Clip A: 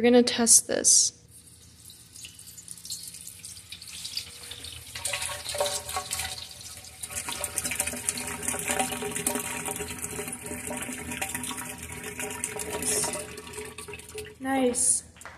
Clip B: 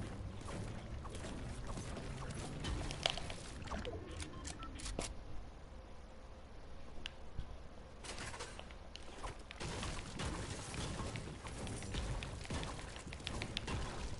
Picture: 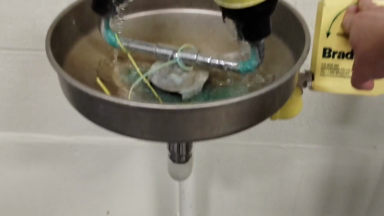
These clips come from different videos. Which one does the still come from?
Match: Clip A